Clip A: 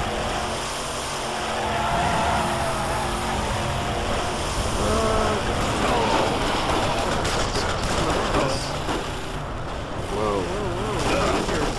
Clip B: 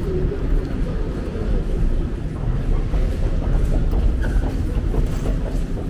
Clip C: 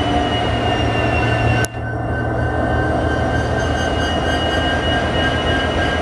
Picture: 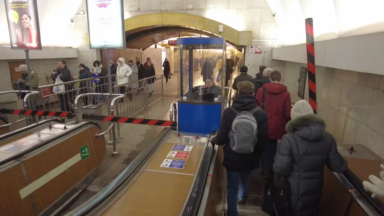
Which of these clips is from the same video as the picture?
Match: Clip B